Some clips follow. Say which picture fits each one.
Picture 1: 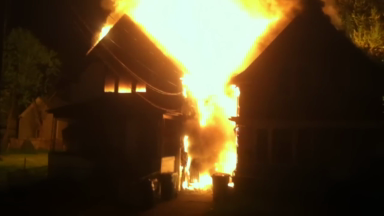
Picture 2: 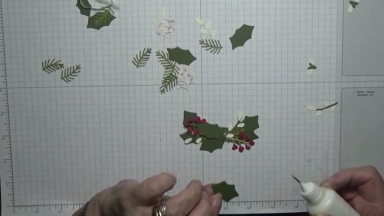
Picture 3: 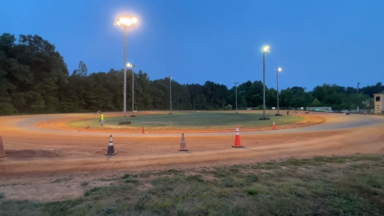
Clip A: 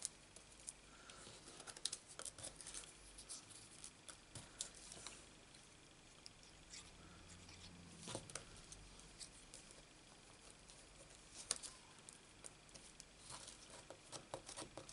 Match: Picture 2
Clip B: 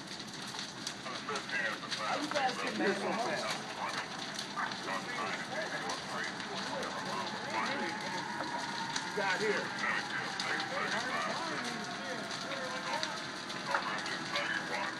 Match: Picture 1